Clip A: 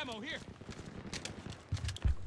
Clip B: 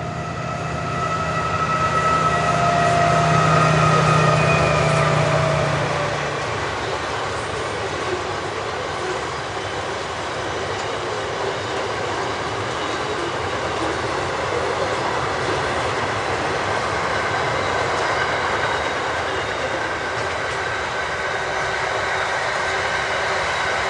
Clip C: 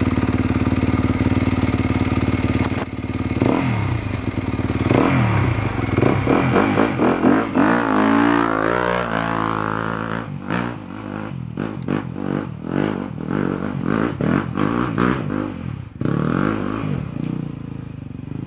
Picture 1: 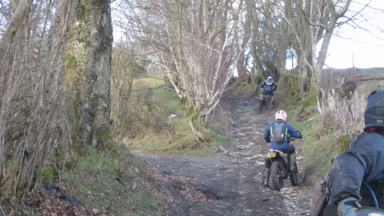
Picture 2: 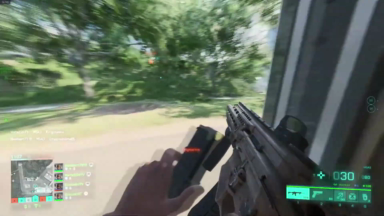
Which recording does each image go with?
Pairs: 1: C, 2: A